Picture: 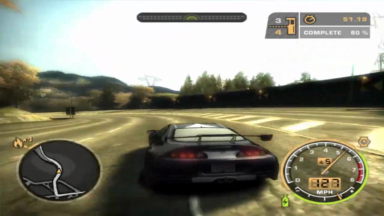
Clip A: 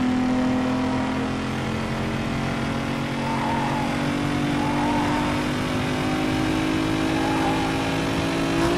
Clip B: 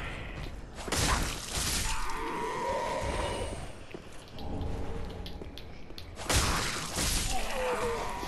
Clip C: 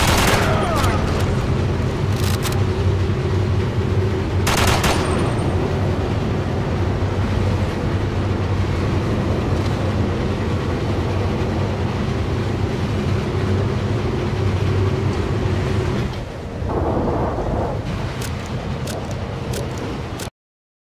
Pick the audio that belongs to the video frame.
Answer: A